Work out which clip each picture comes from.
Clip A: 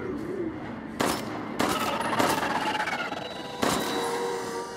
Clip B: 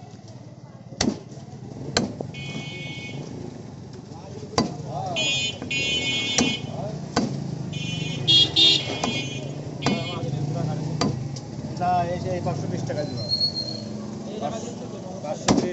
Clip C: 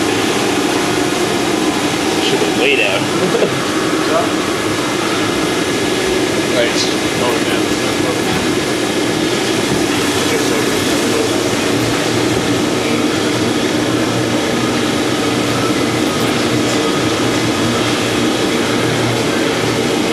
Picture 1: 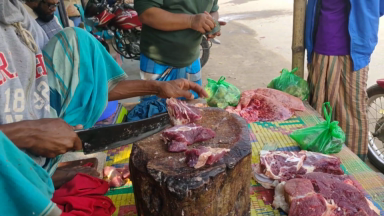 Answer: B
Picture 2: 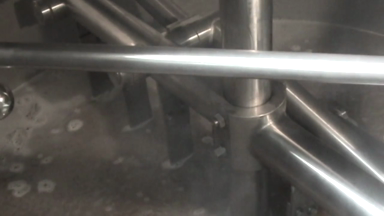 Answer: C